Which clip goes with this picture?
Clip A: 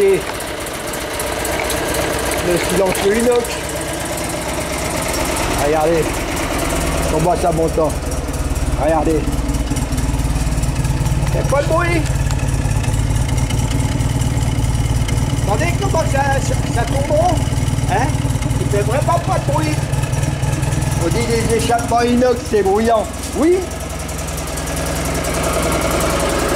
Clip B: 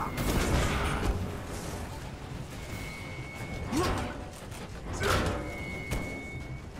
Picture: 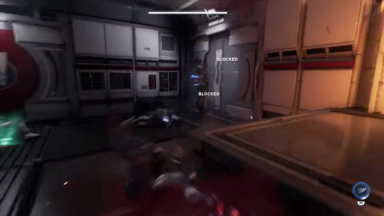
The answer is B